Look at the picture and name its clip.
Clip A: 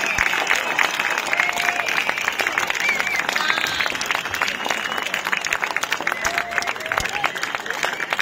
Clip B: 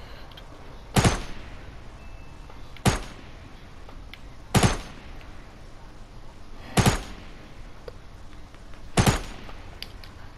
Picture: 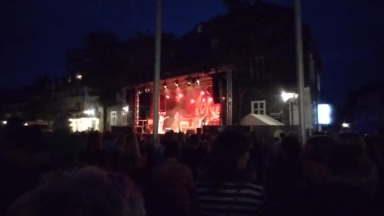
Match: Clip A